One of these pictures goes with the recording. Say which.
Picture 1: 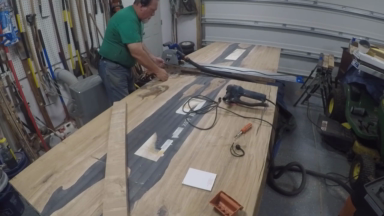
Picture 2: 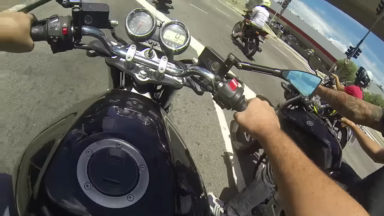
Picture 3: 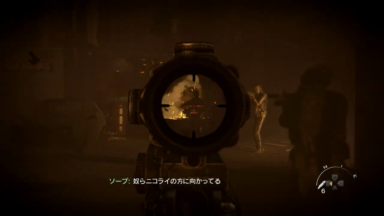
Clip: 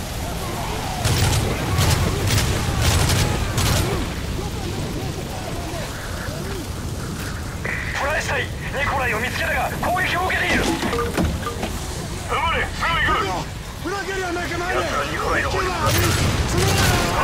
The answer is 3